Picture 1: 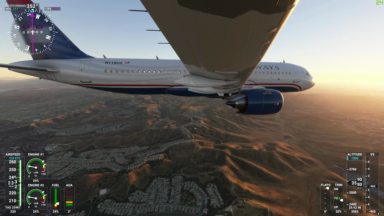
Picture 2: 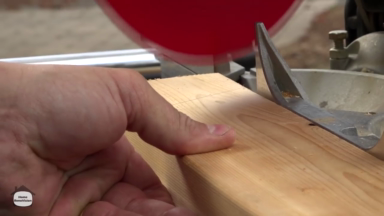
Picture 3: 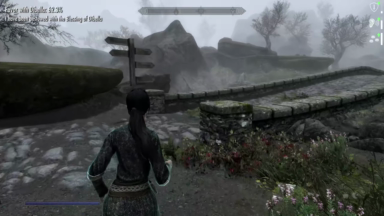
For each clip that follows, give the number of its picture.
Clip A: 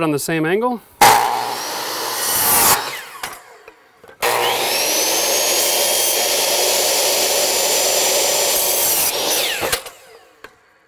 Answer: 2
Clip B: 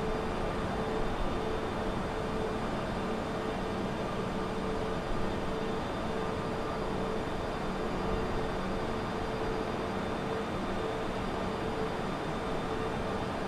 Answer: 1